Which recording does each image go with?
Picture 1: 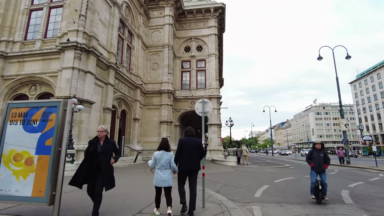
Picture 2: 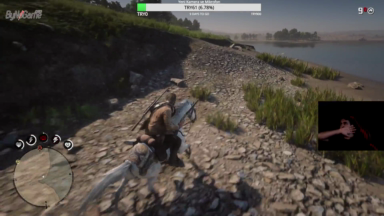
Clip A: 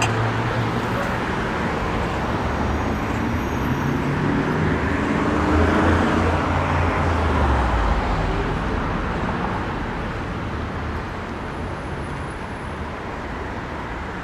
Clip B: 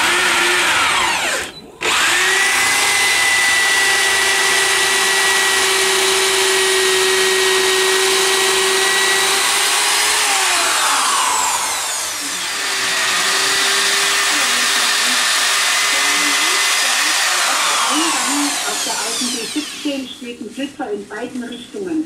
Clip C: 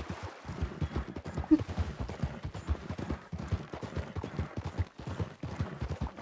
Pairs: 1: A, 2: C